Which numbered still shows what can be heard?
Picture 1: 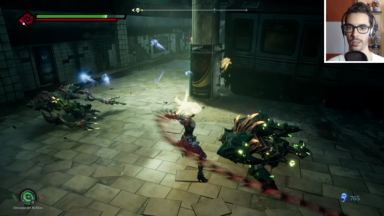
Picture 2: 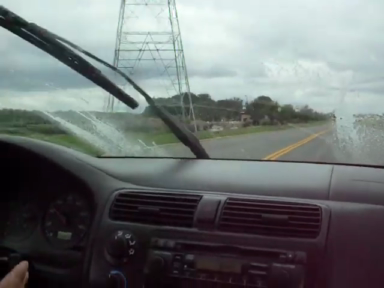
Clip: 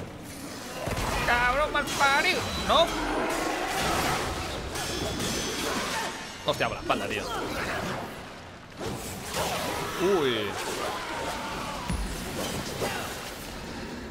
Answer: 1